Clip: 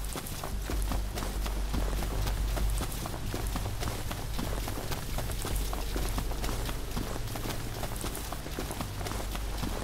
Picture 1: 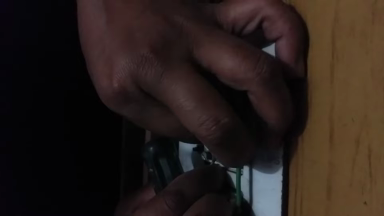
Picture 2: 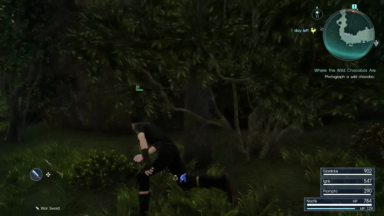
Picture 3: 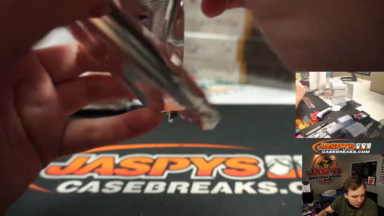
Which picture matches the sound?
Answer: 2